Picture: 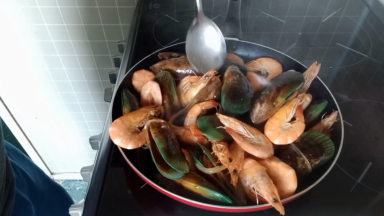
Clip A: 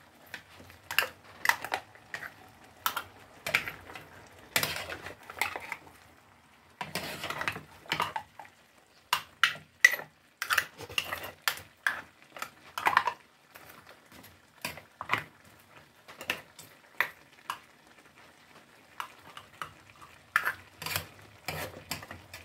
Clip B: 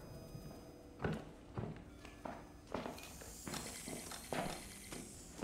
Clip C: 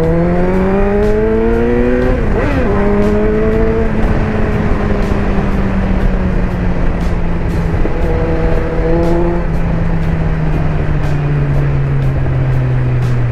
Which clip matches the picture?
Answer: A